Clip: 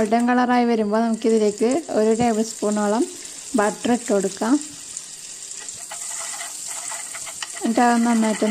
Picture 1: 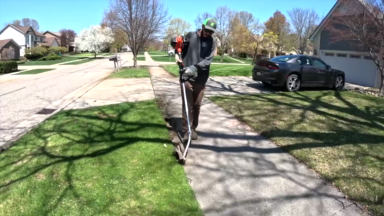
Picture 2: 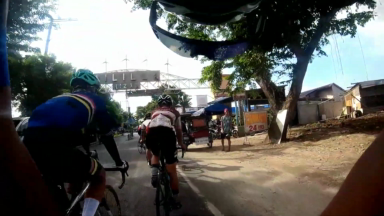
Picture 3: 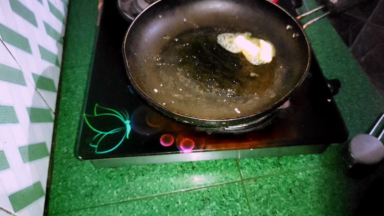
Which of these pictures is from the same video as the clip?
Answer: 3